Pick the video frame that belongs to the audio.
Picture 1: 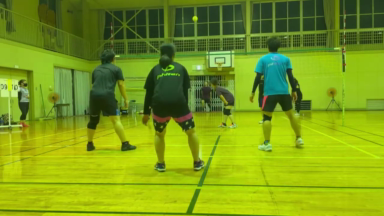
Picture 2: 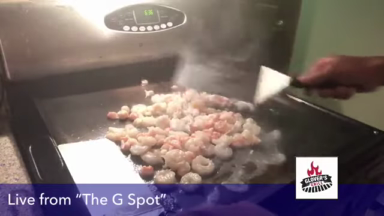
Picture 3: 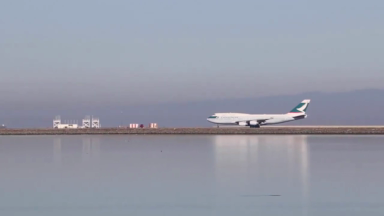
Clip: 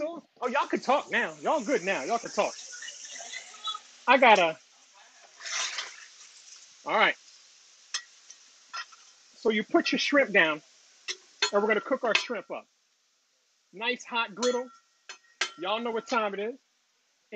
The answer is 2